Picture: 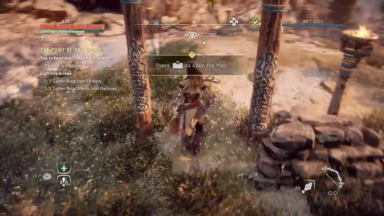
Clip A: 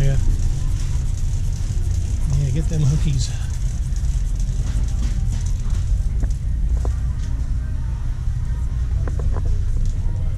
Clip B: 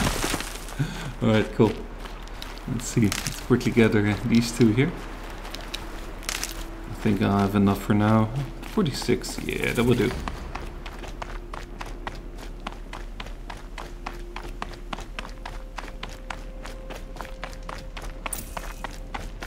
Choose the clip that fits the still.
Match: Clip B